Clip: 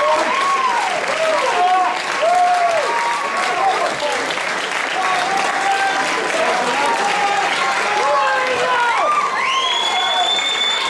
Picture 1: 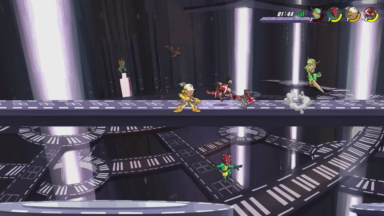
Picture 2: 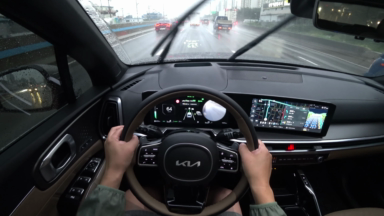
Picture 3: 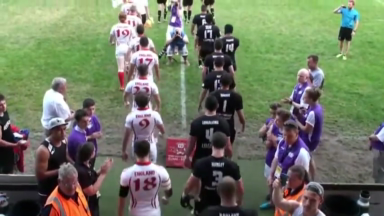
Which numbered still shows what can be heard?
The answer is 3